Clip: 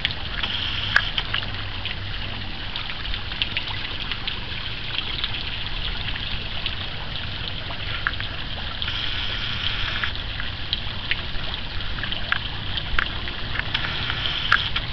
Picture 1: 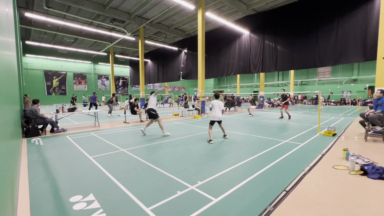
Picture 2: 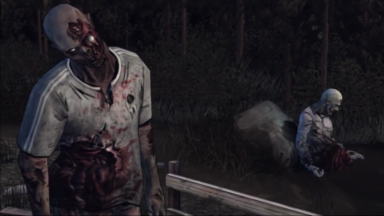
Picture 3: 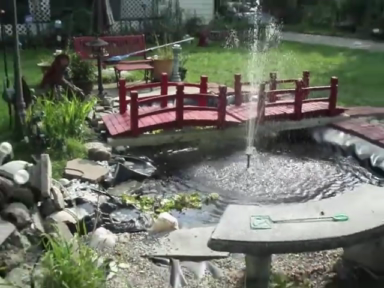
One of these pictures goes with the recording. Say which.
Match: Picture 3